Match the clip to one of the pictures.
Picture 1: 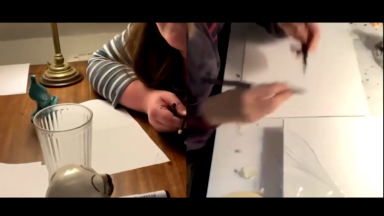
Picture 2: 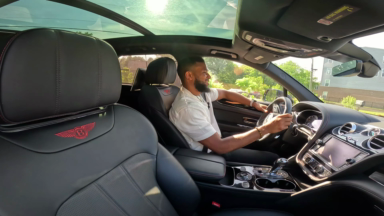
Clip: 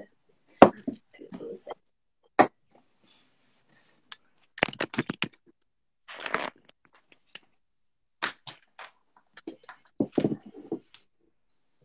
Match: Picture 1